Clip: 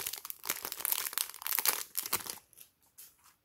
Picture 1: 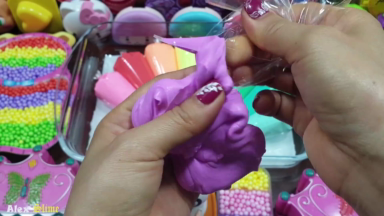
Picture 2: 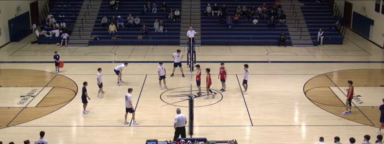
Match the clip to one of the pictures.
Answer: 1